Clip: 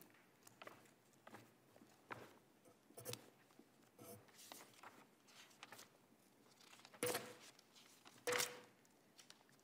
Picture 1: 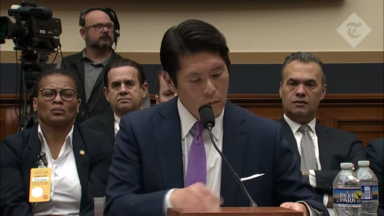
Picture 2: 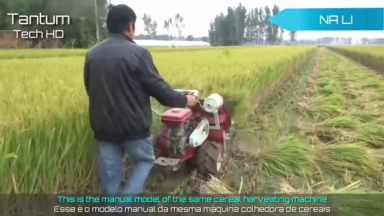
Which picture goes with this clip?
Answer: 1